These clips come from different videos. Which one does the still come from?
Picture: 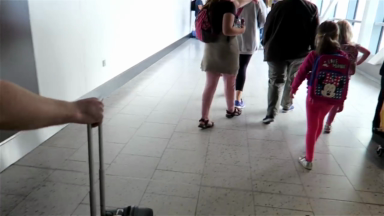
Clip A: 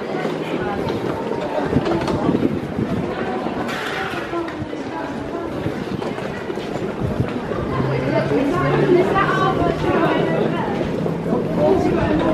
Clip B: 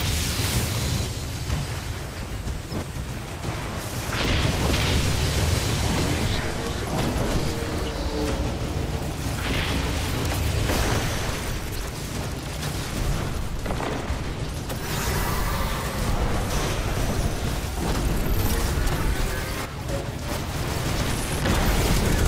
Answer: A